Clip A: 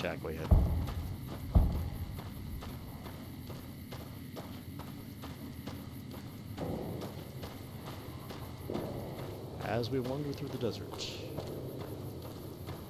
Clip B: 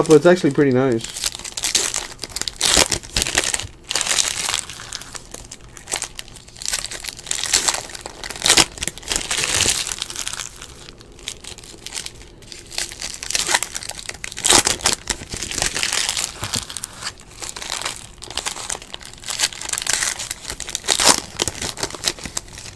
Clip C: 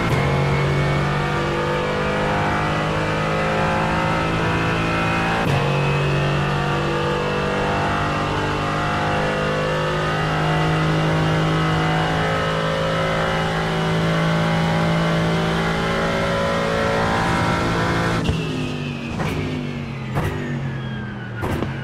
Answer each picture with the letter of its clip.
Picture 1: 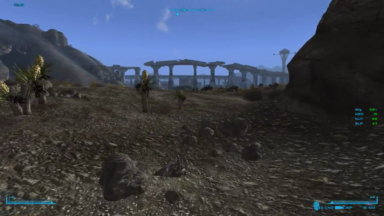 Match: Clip A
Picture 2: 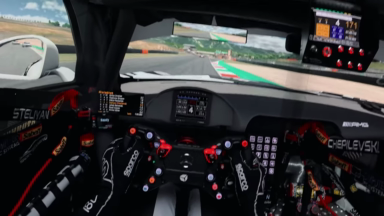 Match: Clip C